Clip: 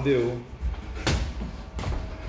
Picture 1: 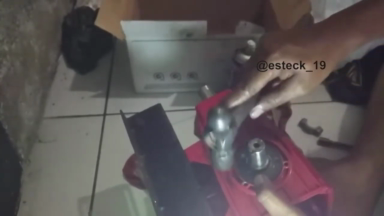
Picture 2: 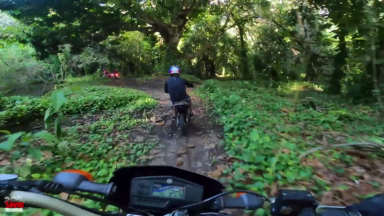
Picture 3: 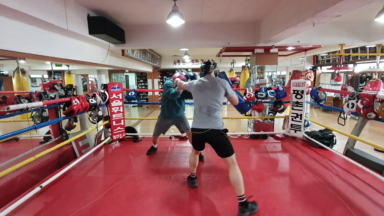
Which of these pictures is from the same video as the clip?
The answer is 3